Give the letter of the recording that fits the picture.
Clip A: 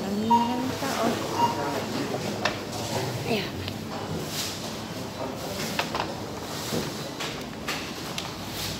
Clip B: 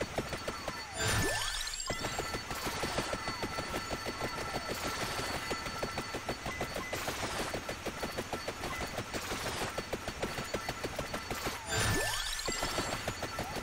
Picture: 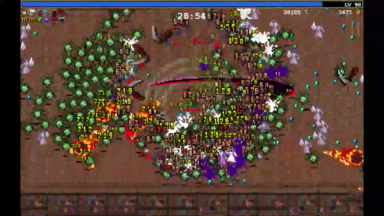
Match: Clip B